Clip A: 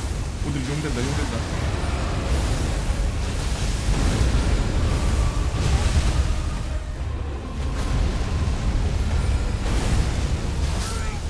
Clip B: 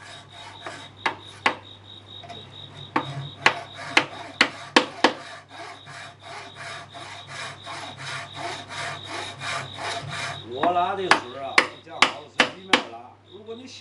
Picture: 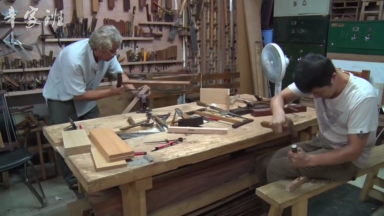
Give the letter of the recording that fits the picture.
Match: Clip B